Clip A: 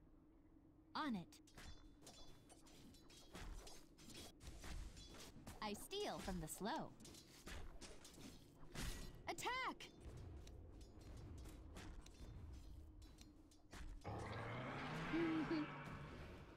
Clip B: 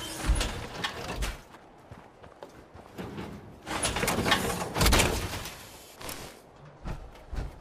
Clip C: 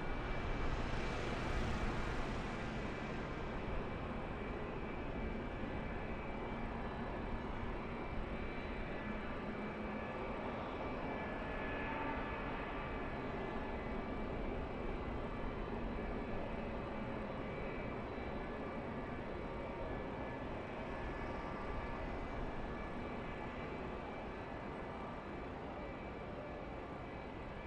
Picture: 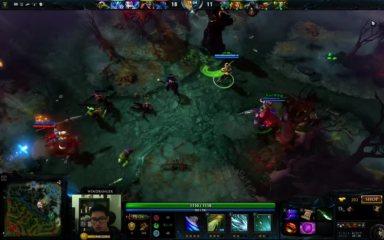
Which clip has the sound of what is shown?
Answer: A